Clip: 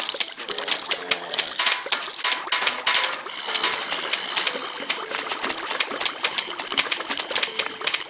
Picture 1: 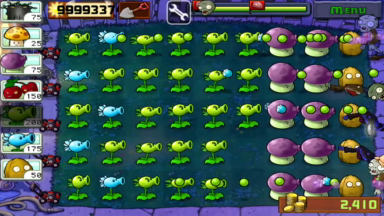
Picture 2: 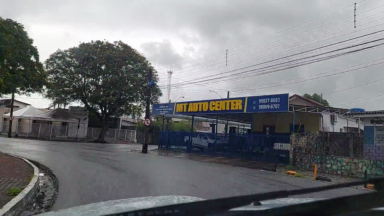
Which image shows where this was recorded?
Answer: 1